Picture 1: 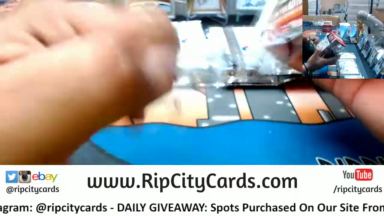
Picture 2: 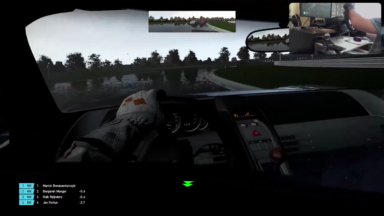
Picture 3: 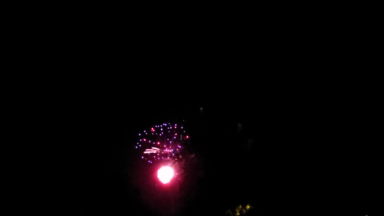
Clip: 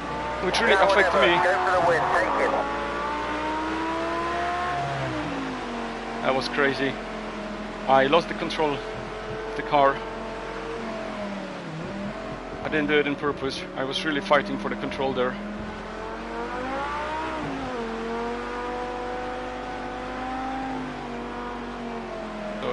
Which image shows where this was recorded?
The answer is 2